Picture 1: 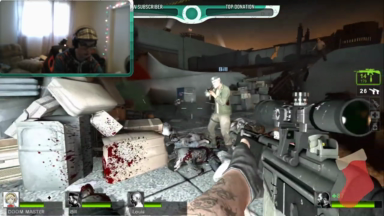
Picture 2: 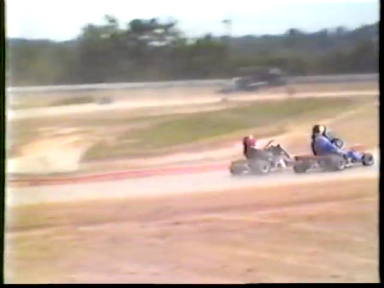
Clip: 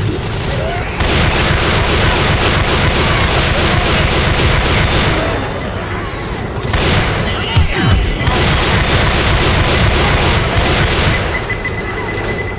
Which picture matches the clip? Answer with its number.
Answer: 1